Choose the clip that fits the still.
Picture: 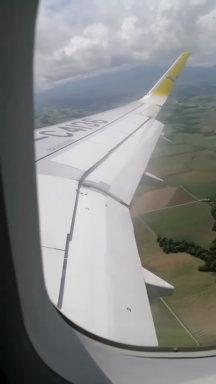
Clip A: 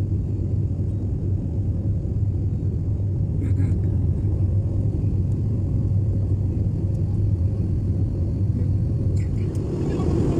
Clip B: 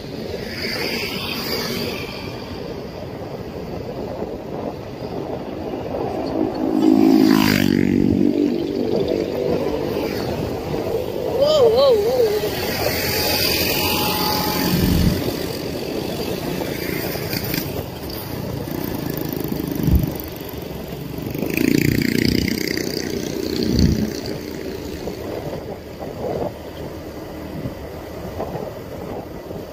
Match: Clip A